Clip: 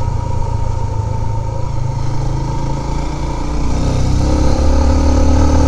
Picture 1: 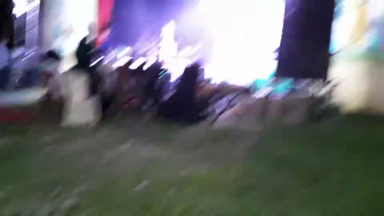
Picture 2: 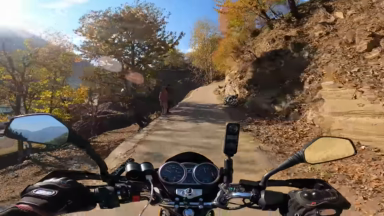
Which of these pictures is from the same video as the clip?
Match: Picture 2